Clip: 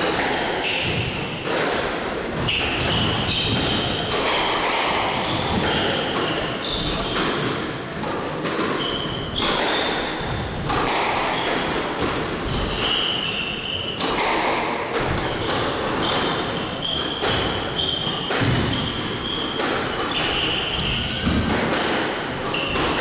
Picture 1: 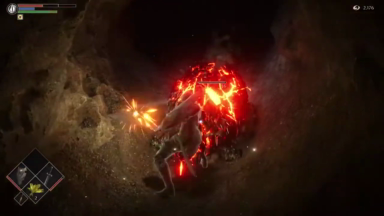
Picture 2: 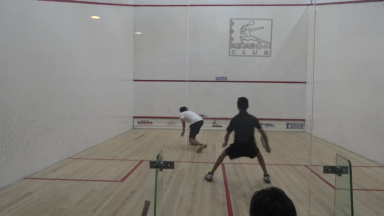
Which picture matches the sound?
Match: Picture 2